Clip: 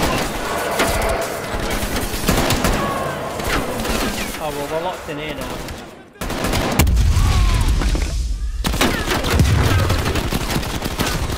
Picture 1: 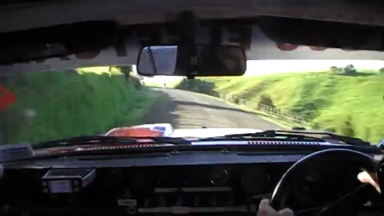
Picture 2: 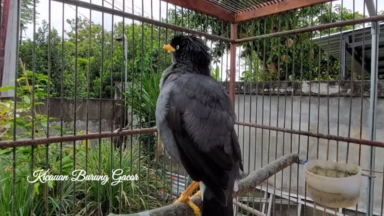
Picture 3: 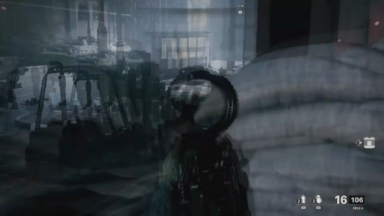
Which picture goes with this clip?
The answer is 3